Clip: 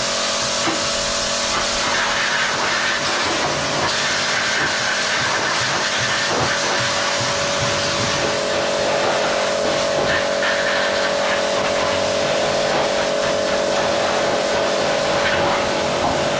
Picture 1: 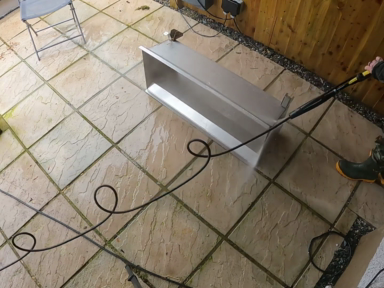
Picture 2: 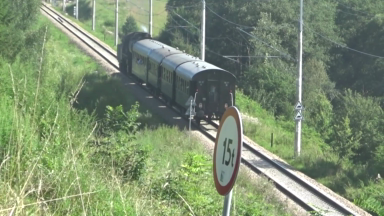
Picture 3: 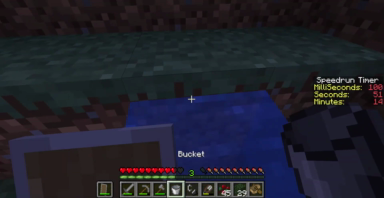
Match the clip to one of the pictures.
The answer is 1